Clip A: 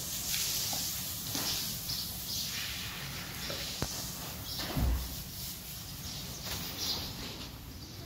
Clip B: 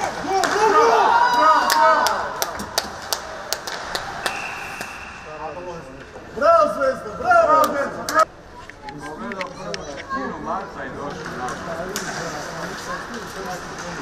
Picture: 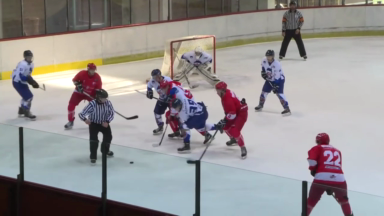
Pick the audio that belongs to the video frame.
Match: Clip B